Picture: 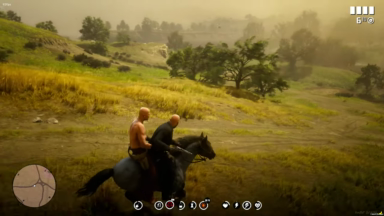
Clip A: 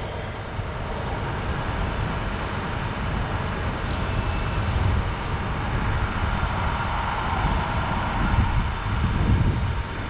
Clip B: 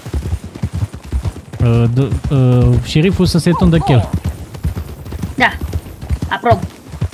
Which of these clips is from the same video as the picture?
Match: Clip B